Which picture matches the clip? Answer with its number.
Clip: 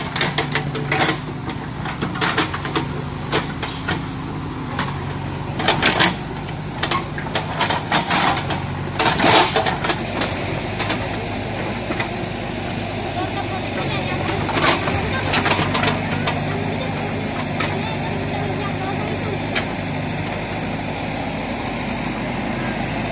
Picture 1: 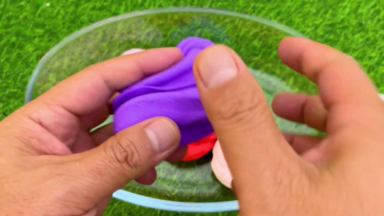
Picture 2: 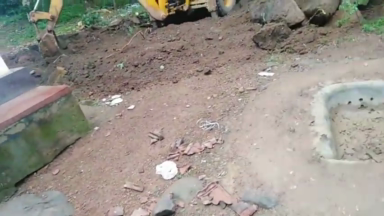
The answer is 2